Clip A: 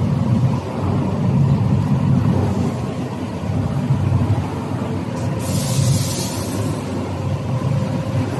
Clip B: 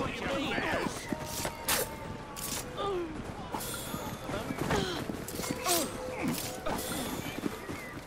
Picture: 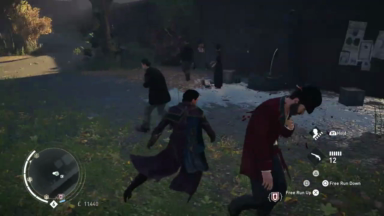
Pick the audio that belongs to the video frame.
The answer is B